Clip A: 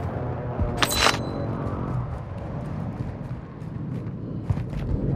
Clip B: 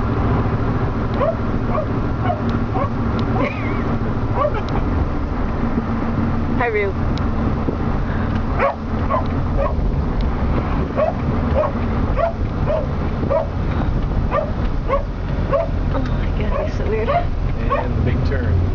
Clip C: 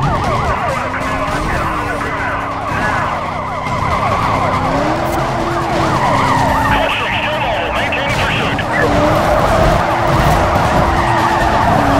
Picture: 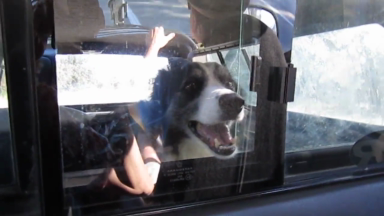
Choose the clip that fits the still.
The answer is B